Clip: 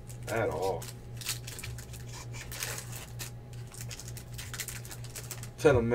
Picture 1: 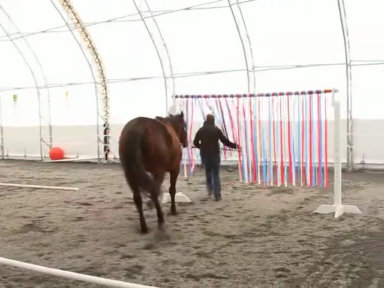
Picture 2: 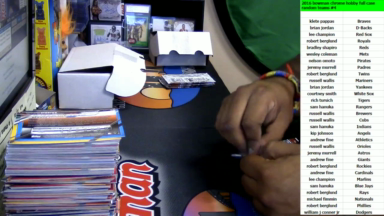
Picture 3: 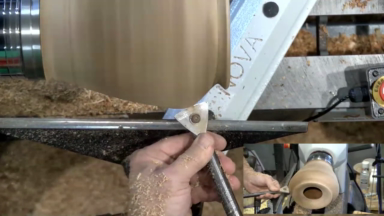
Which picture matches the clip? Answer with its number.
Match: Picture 2